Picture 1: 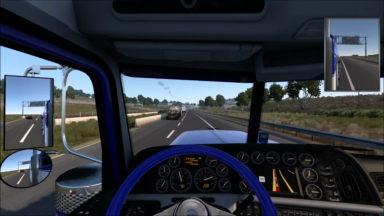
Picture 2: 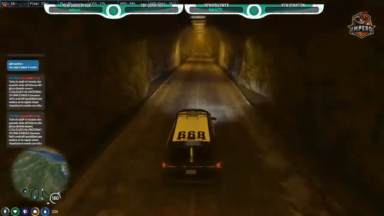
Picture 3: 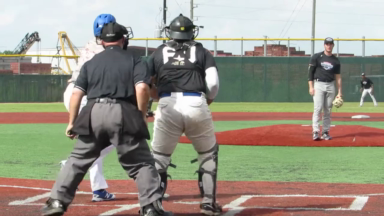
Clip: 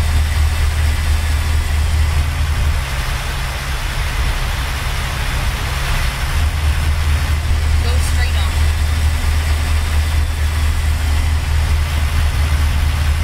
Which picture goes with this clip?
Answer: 1